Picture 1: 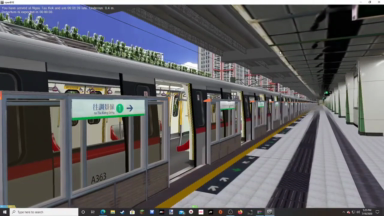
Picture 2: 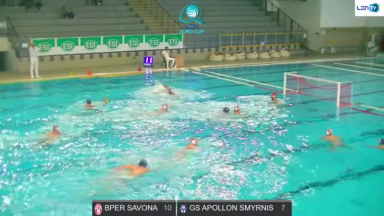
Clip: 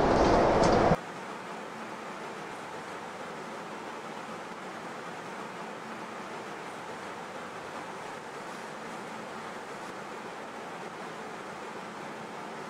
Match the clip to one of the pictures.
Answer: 1